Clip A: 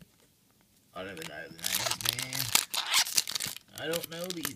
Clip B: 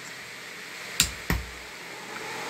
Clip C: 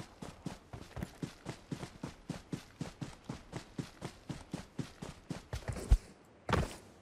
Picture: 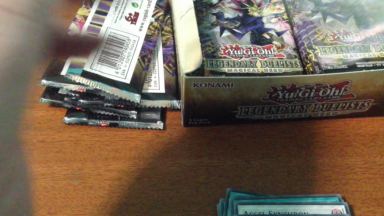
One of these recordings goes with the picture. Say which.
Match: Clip A